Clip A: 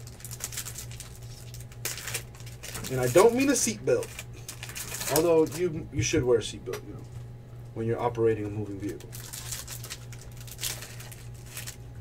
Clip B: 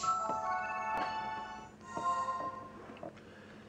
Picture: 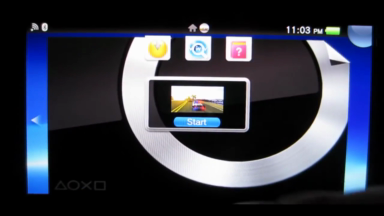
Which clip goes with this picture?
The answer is B